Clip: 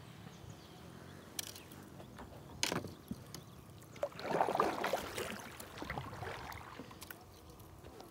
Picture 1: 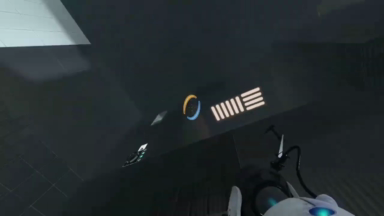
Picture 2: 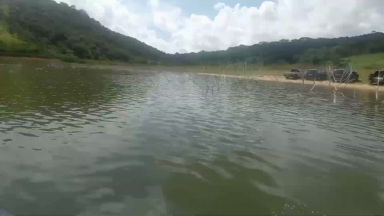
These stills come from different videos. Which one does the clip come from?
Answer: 2